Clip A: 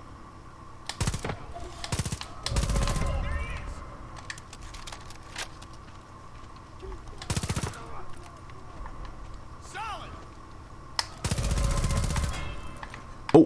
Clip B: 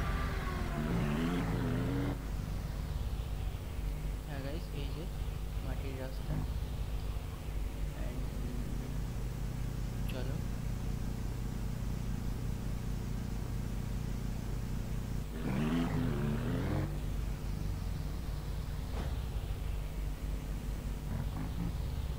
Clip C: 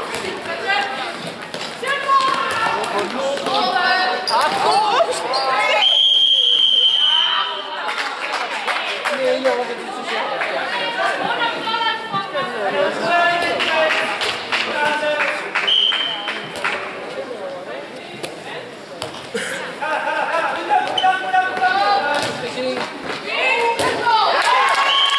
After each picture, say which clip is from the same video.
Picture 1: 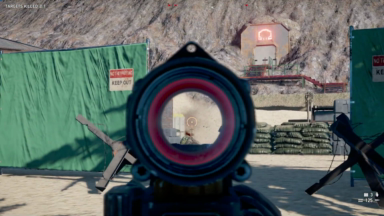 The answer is A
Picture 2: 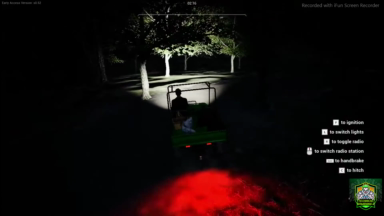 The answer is B